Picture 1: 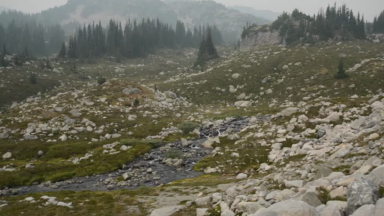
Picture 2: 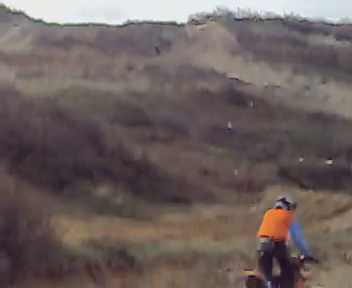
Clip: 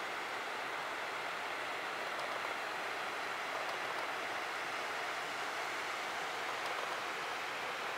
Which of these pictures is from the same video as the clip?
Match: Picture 1